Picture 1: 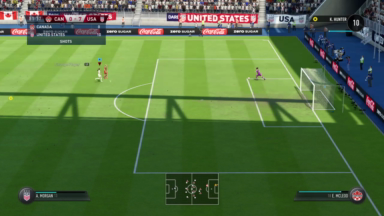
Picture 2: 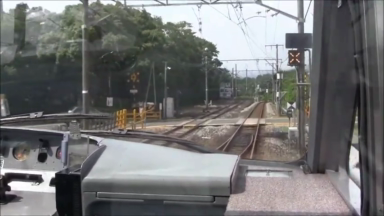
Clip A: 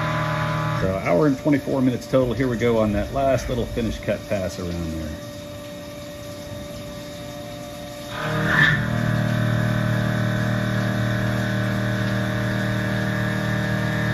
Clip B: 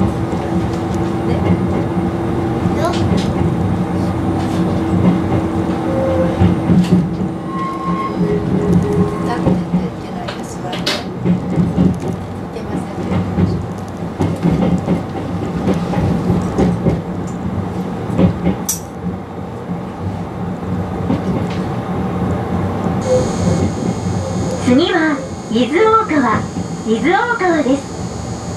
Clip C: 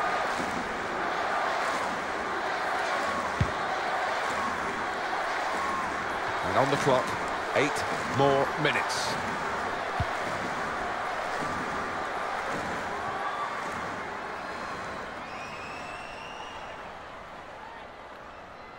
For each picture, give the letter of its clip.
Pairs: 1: C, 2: B